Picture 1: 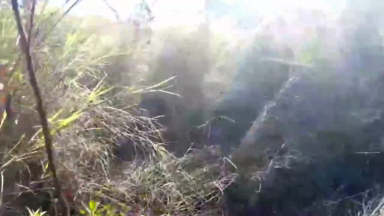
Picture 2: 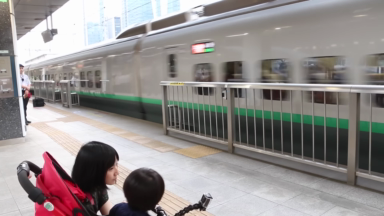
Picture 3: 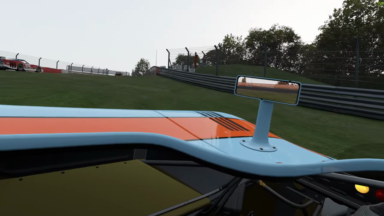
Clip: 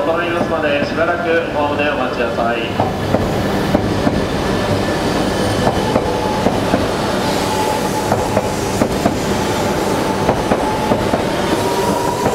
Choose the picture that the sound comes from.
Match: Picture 2